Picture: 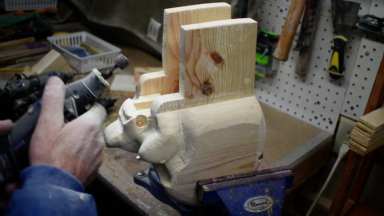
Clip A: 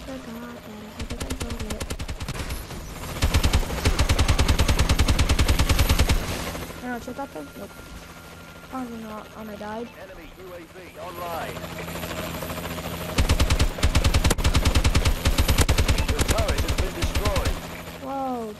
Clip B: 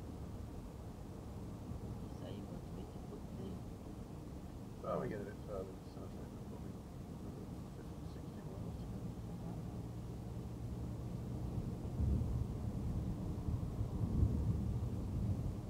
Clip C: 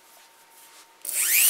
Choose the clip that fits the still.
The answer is C